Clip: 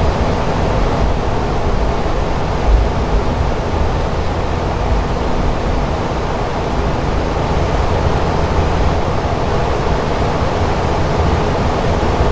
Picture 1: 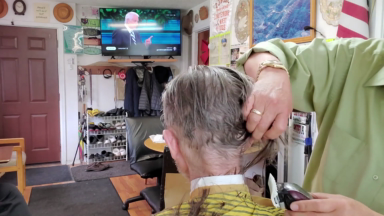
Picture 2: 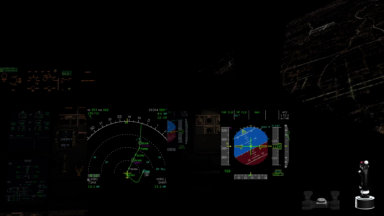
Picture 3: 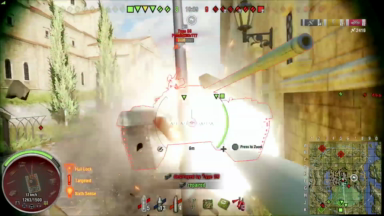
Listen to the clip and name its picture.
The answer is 2